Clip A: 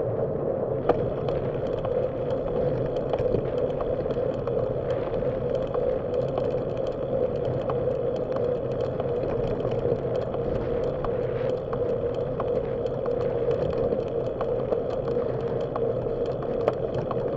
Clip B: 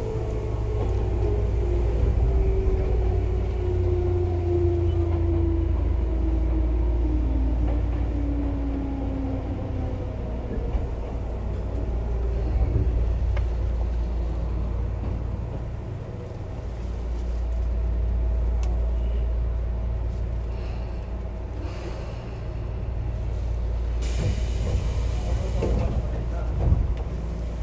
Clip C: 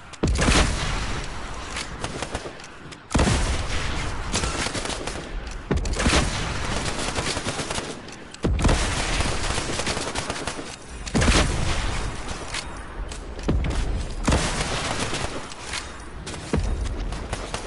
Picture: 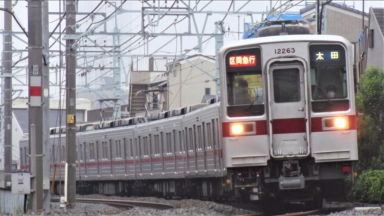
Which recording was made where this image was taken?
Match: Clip B